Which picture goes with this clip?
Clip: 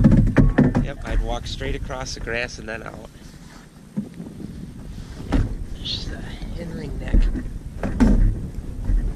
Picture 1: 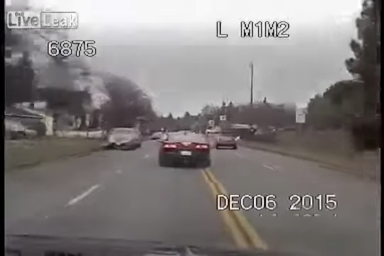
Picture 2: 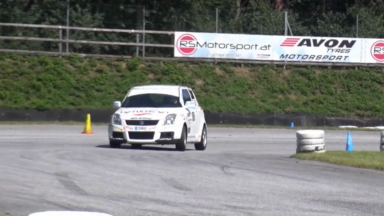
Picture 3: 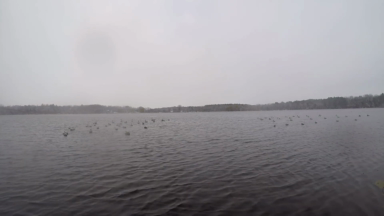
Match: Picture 3